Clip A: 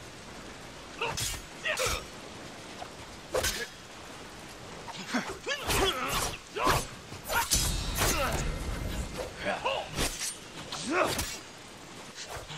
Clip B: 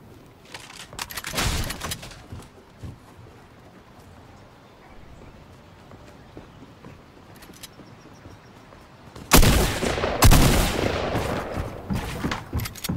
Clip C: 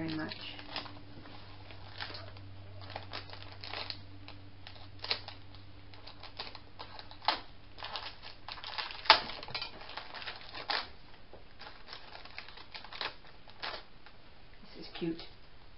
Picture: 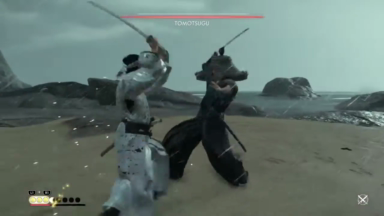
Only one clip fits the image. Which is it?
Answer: A